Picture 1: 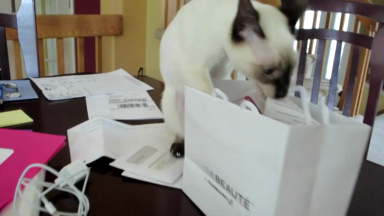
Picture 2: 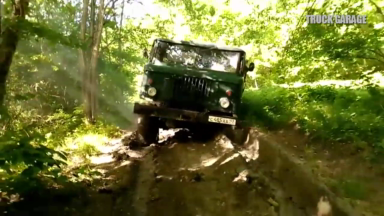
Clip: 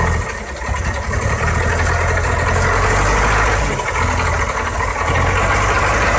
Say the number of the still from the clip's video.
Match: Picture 2